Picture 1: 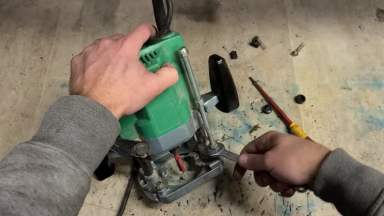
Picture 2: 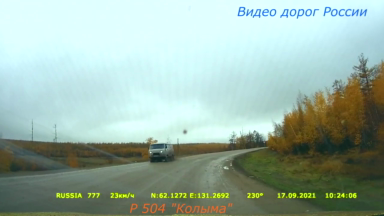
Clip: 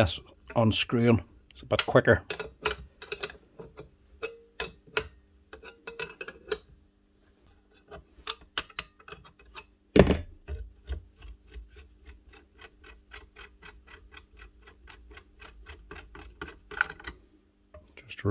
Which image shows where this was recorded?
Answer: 1